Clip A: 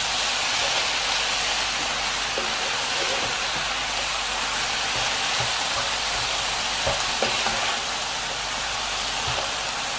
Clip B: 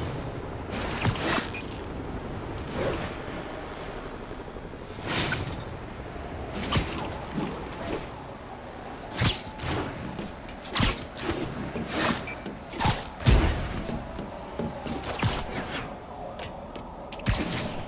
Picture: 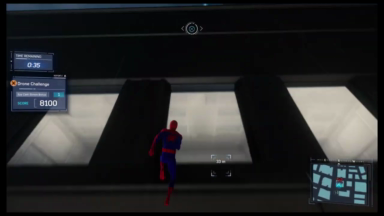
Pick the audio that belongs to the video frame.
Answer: B